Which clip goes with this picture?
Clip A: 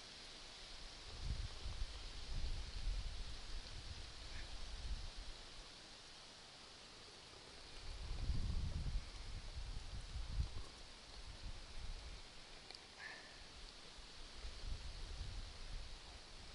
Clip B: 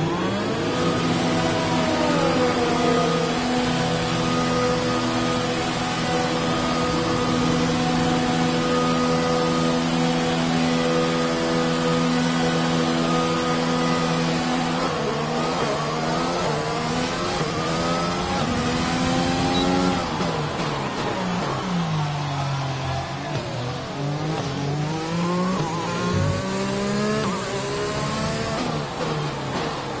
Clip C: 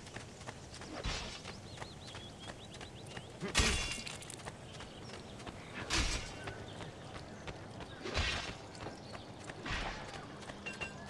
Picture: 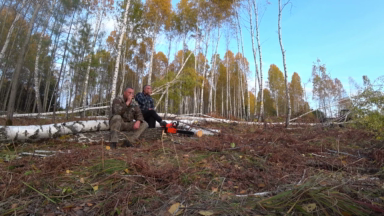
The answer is A